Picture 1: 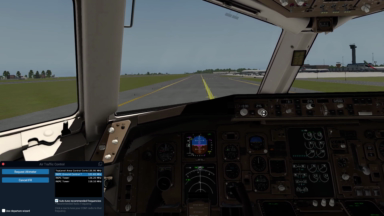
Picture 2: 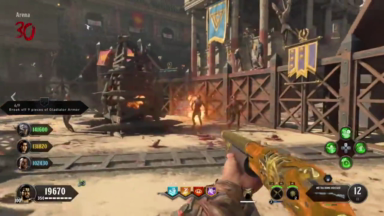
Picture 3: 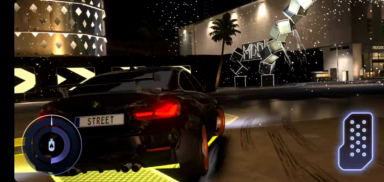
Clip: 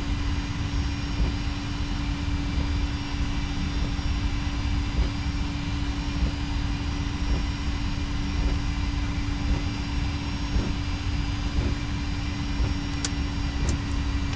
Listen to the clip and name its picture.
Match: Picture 1